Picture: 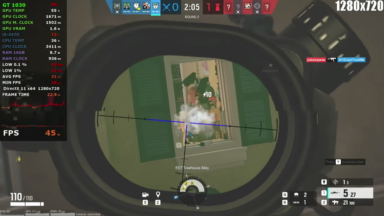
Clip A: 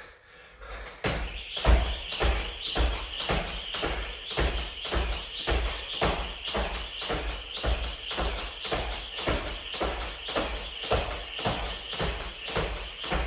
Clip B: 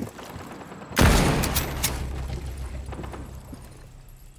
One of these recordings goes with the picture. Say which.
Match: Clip B